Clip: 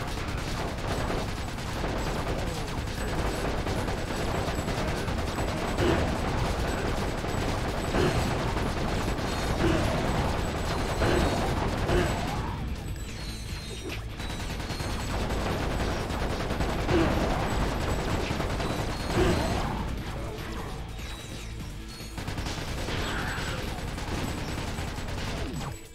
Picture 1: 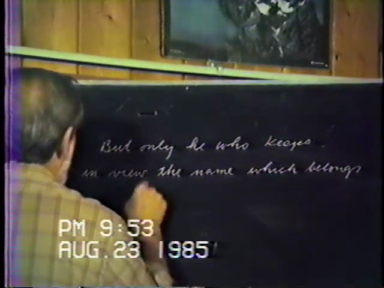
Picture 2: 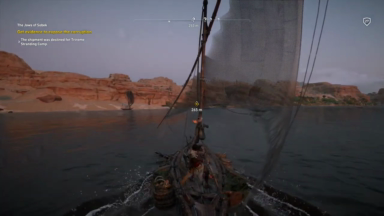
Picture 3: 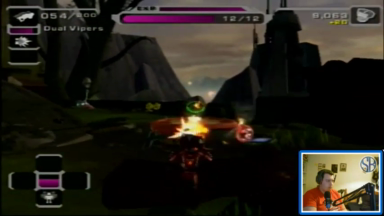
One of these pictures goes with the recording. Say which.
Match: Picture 3